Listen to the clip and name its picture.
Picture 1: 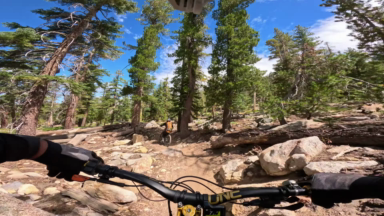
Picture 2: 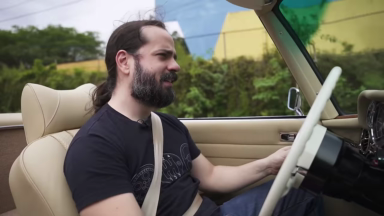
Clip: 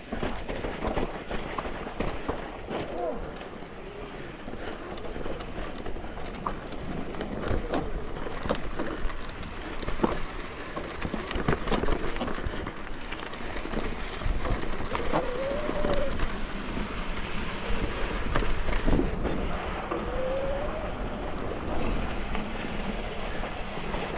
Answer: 1